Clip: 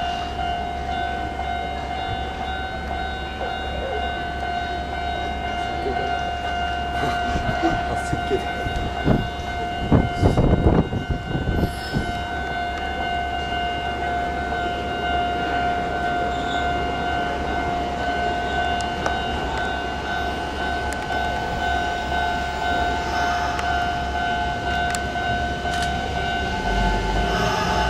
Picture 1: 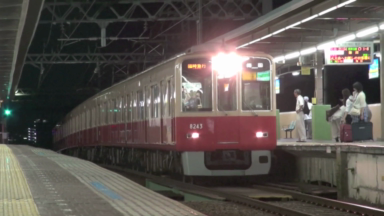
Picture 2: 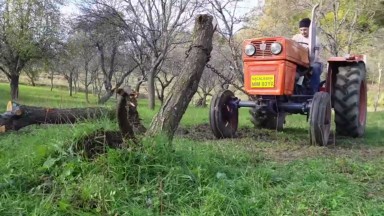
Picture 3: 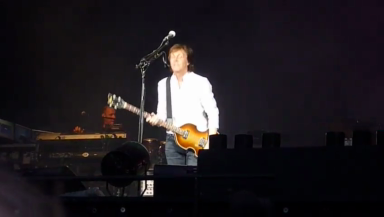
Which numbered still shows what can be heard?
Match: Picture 1